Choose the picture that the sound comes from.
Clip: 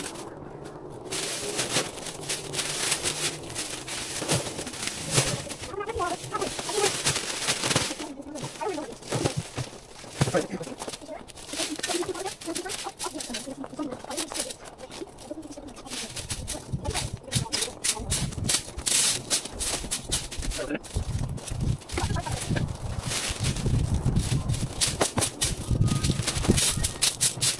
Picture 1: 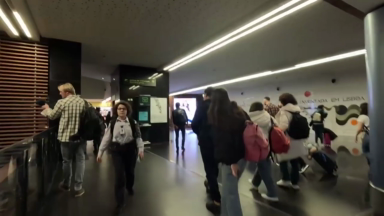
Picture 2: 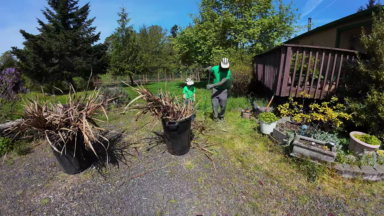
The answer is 2